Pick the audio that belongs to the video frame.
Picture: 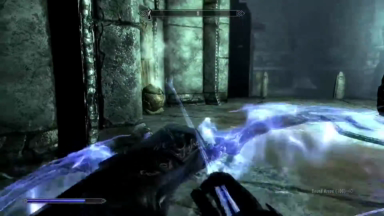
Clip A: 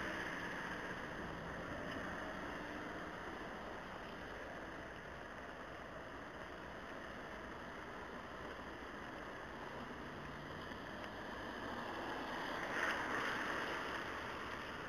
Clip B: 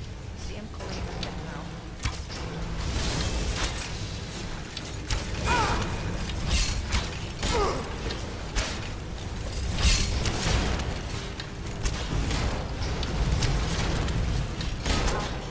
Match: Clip B